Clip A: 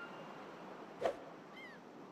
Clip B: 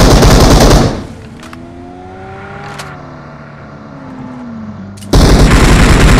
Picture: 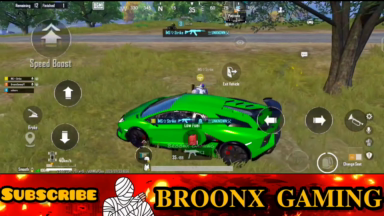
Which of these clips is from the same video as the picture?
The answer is B